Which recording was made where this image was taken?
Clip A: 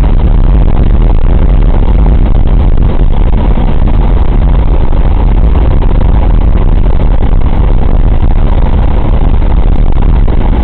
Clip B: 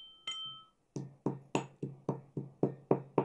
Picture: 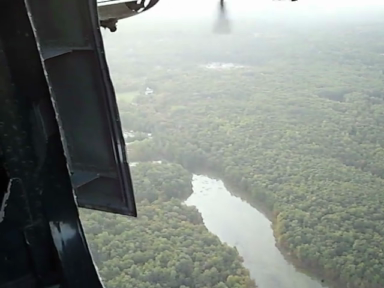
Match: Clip A